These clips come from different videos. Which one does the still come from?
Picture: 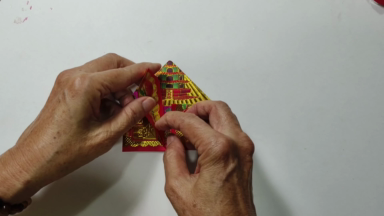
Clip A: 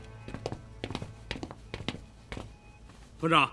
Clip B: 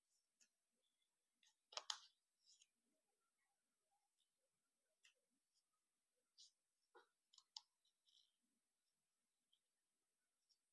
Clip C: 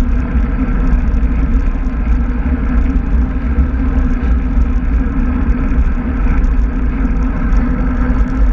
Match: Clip B